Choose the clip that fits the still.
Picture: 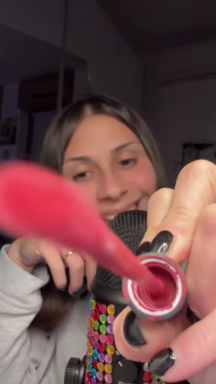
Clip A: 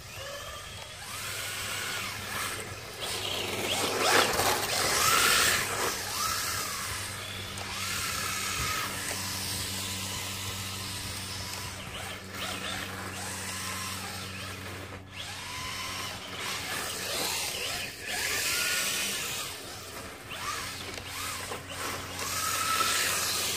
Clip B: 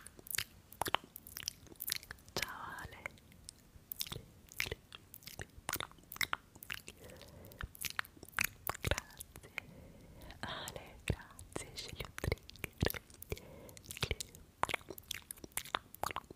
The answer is B